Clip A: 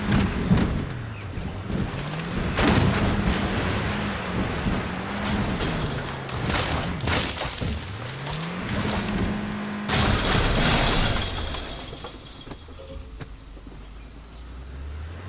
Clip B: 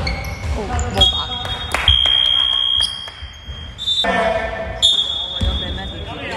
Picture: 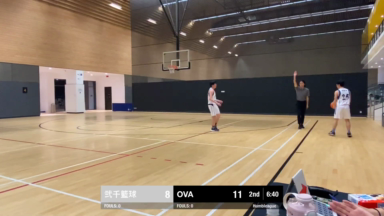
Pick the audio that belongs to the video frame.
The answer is B